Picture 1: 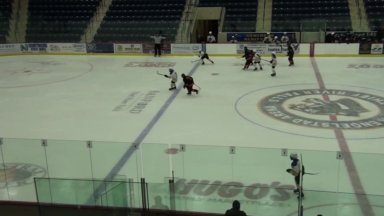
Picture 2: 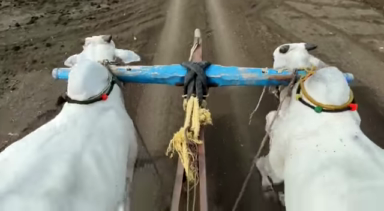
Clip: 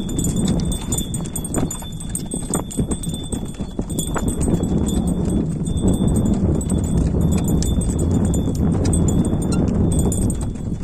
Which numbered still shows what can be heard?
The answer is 2